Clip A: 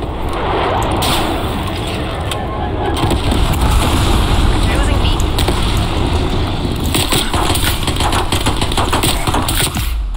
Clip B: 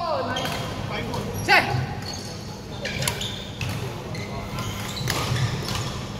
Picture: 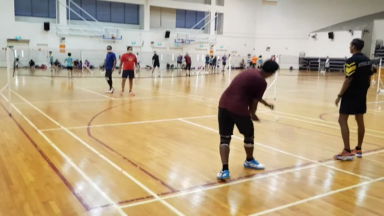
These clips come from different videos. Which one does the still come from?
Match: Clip B